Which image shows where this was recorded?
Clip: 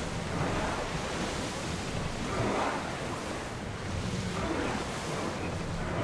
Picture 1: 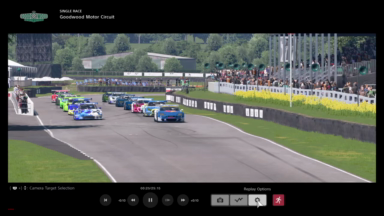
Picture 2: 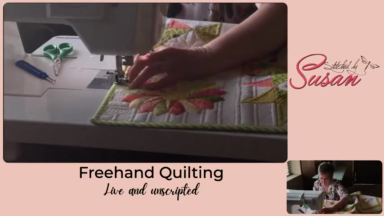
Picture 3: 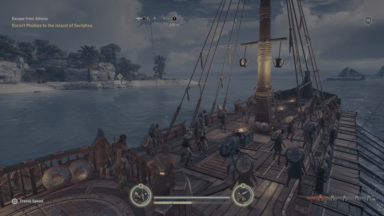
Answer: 3